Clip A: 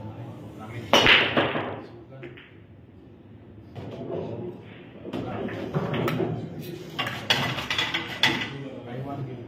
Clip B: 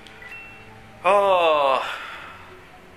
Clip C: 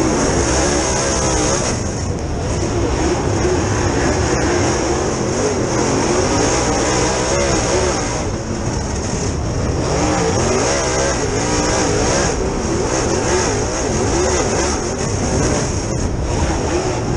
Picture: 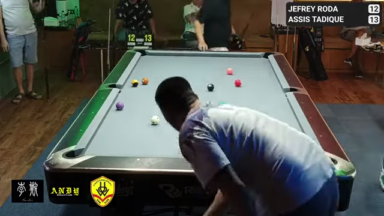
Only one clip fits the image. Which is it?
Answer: A